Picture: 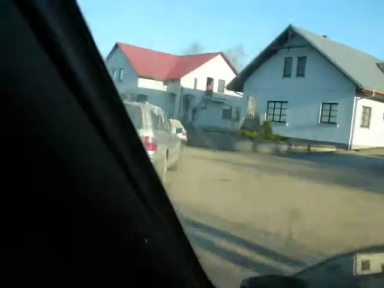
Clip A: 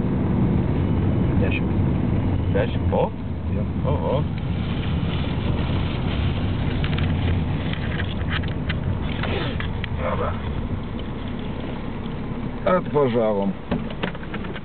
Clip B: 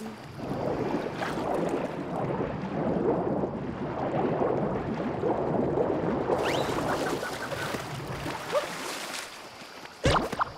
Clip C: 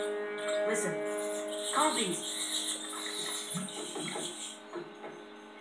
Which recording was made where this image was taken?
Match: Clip A